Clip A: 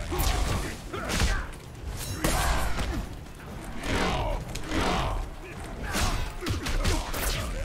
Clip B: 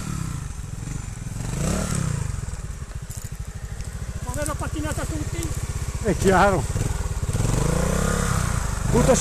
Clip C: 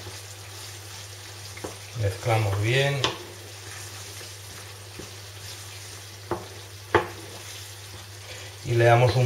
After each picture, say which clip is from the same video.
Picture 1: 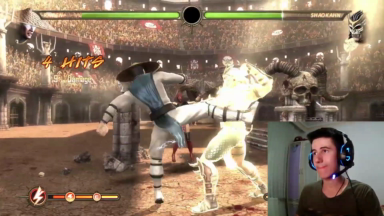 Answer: A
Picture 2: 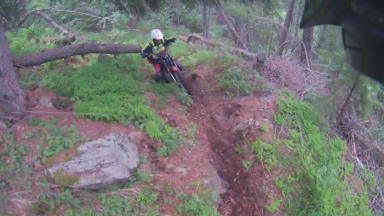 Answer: B